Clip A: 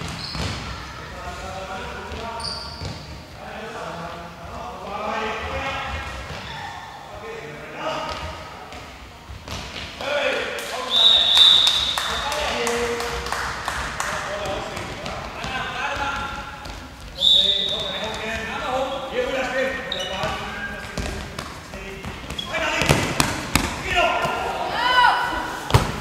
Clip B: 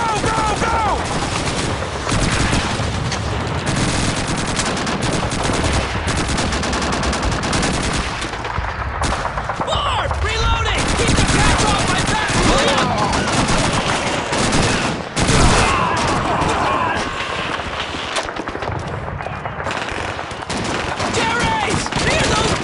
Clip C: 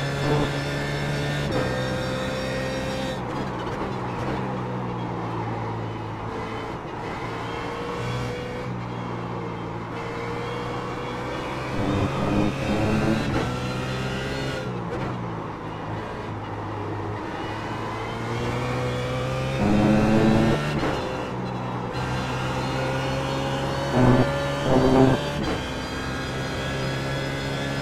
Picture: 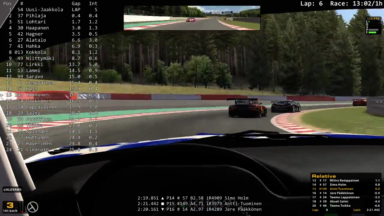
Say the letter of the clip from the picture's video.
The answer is C